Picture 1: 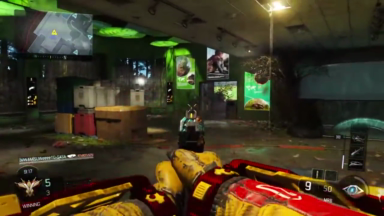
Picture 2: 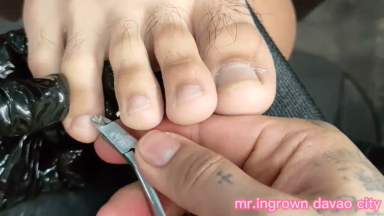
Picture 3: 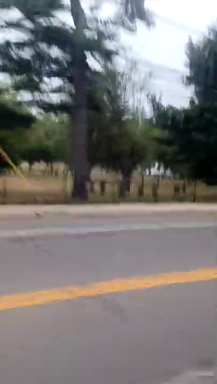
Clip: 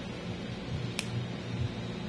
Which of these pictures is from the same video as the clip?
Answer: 2